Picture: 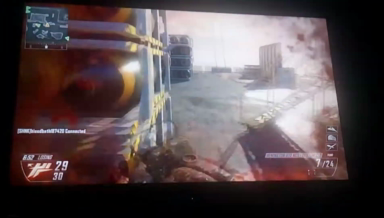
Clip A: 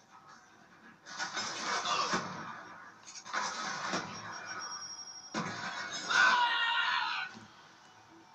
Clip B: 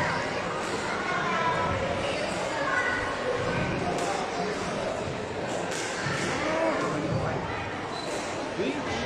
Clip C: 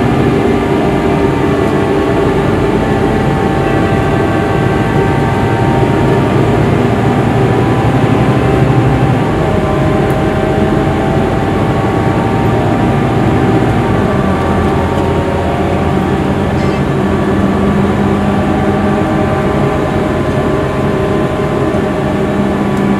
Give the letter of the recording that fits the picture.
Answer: A